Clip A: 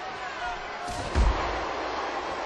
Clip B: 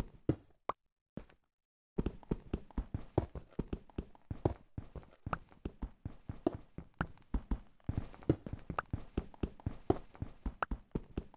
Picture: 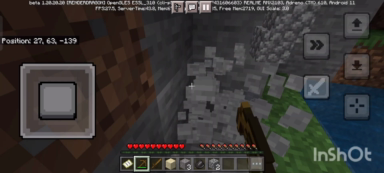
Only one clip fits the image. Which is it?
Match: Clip B